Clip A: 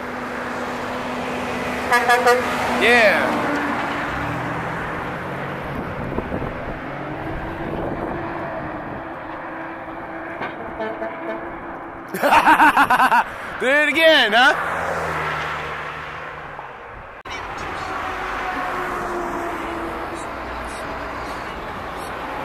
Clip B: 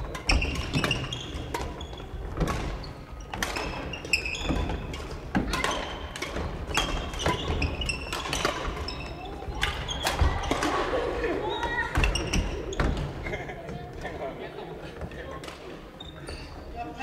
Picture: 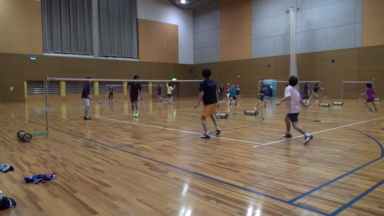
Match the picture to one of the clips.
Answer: B